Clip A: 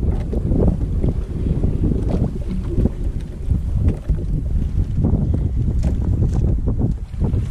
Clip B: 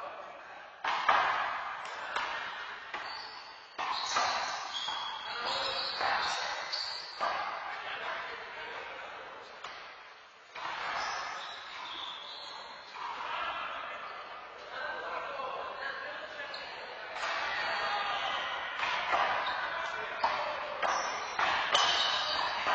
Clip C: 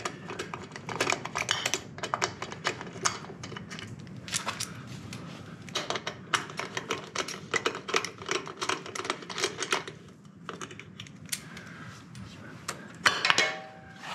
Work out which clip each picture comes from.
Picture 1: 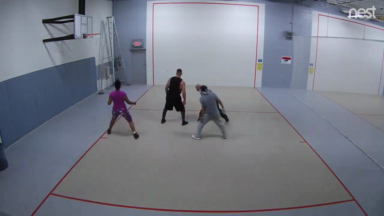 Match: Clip B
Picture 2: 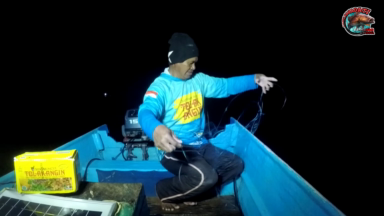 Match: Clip A